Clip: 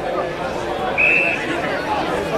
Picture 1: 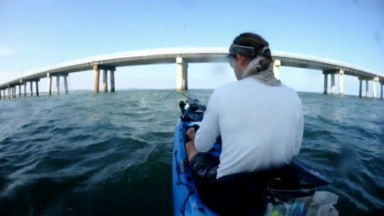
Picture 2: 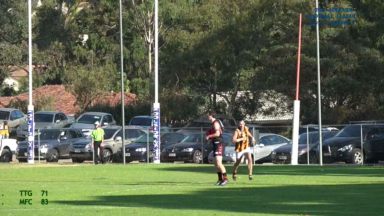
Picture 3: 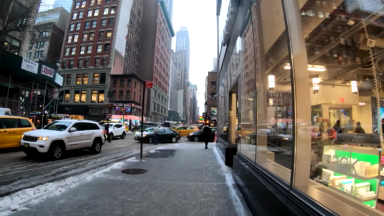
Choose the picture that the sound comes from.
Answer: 2